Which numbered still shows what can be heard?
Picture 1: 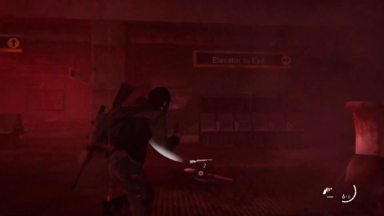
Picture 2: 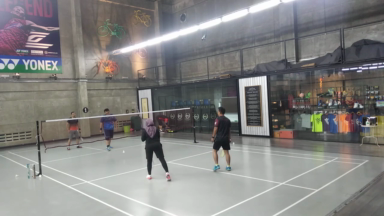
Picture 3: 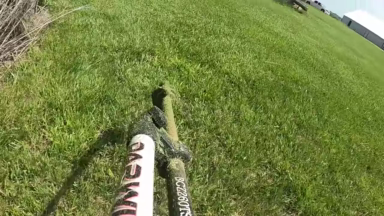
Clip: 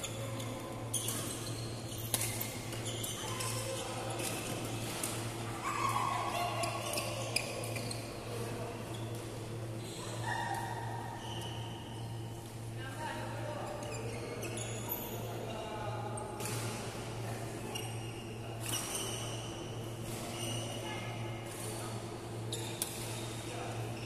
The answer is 2